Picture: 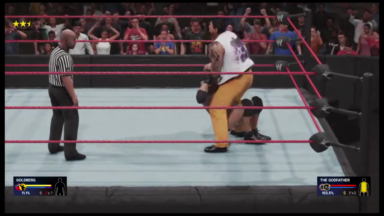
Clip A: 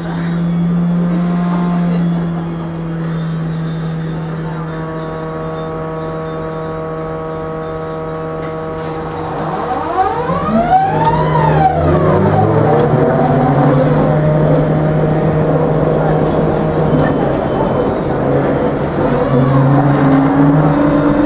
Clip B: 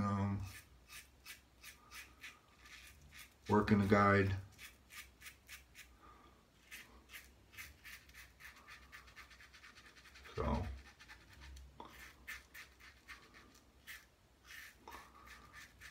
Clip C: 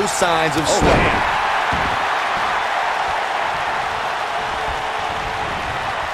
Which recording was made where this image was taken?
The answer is C